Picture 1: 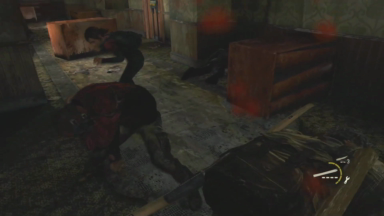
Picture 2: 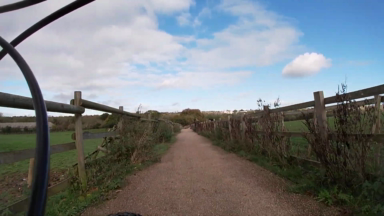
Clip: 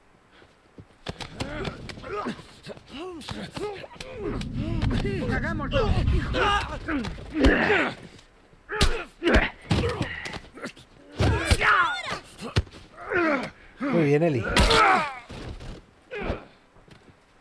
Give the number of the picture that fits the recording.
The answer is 1